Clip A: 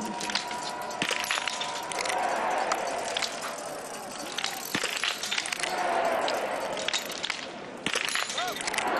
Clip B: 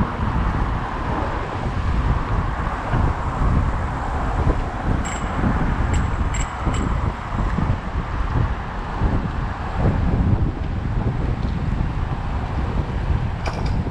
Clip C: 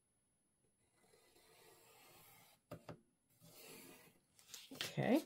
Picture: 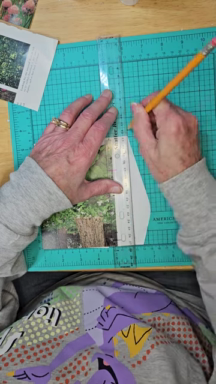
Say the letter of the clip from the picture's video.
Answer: C